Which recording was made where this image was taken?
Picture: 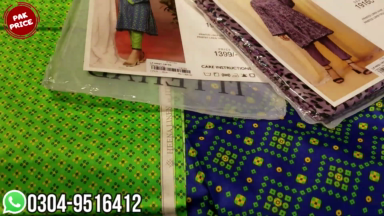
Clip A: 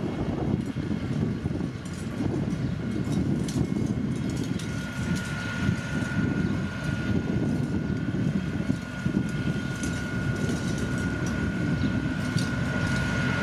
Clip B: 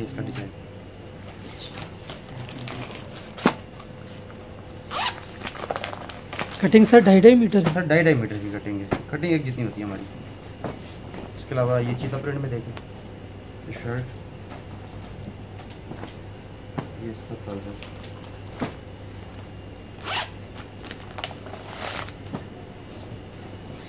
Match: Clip B